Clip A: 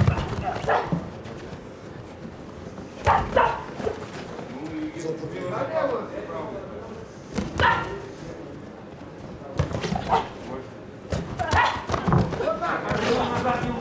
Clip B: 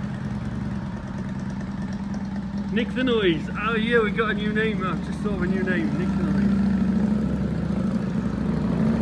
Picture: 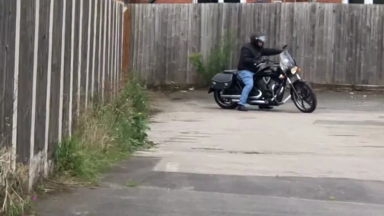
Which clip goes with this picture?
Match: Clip B